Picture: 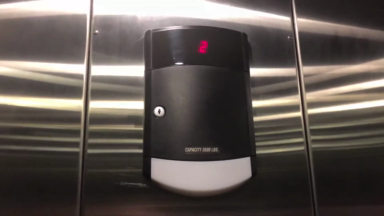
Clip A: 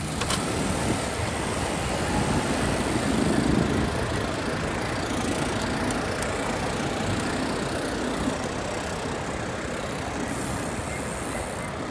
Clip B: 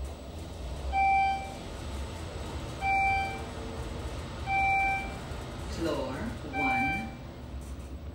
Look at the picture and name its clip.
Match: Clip B